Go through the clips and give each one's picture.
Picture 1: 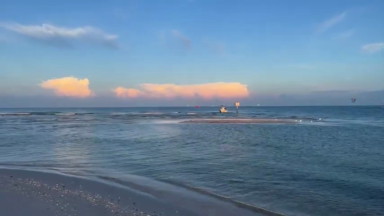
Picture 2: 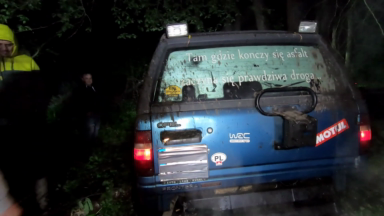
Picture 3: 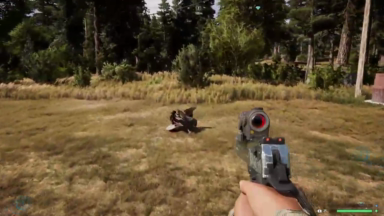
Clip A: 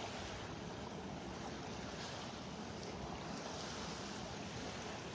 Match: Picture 1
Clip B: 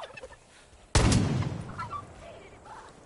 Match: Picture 3